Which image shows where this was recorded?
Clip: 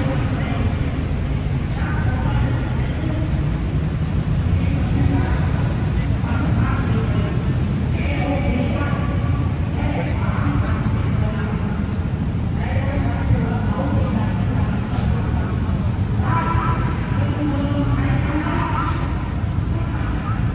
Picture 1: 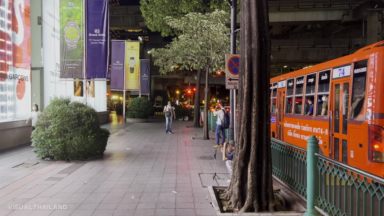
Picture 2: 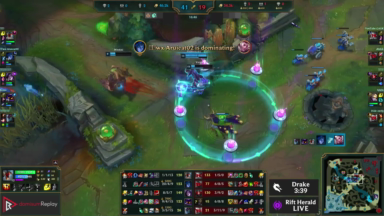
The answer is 1